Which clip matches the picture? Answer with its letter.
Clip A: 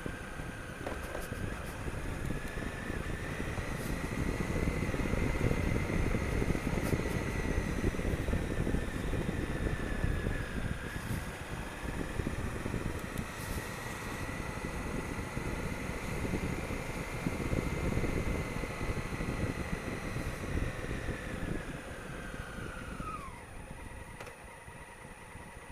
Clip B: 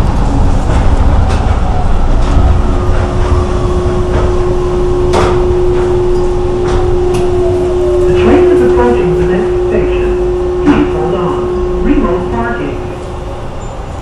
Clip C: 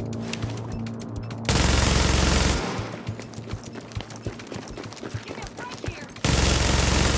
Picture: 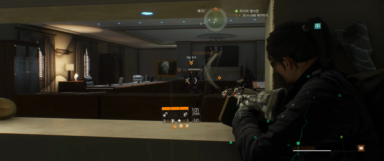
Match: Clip C